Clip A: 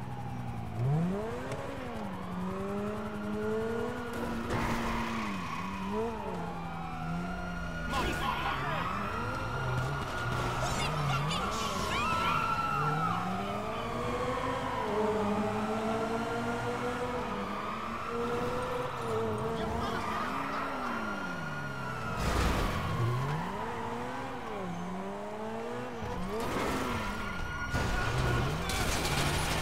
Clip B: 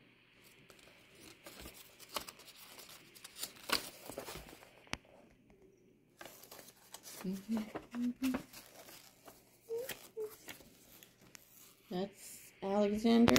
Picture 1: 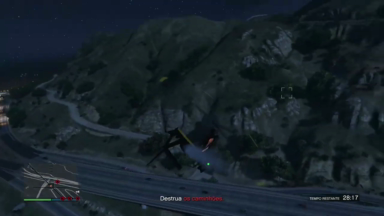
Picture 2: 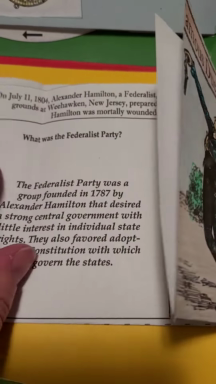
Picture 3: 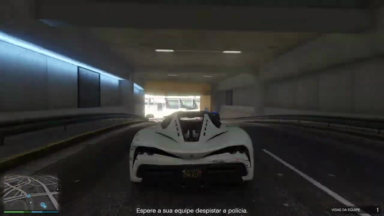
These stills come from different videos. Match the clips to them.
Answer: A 3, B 2